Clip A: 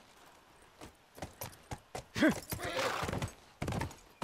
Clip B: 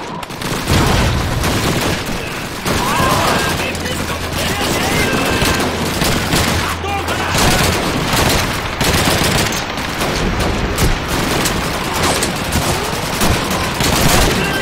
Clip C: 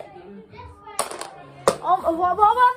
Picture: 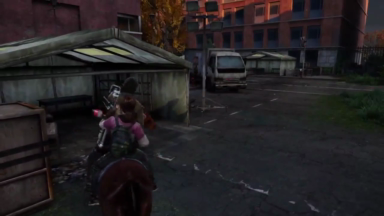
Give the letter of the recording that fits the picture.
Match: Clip A